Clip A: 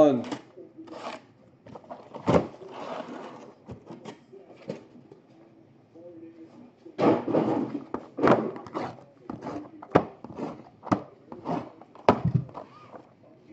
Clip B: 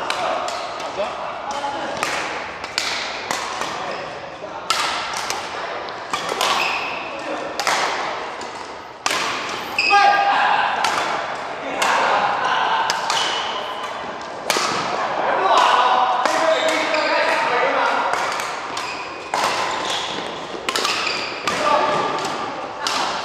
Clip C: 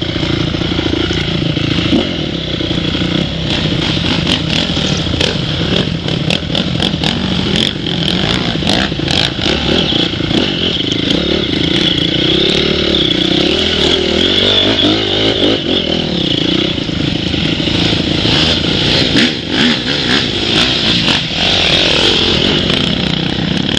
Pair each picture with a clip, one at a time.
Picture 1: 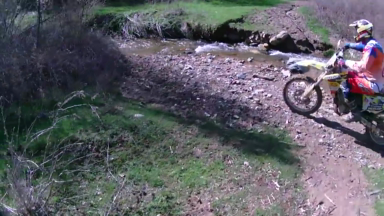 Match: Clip C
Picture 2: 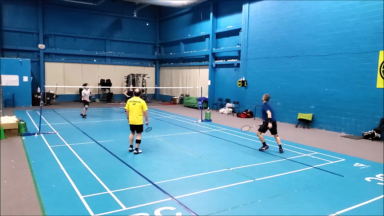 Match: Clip B